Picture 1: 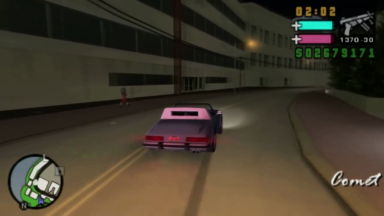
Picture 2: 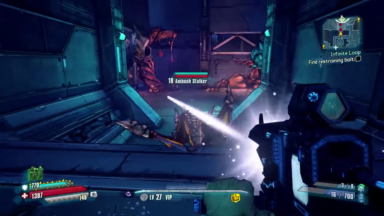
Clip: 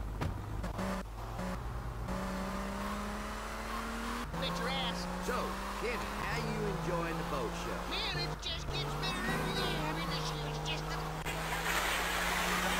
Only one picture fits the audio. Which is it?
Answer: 1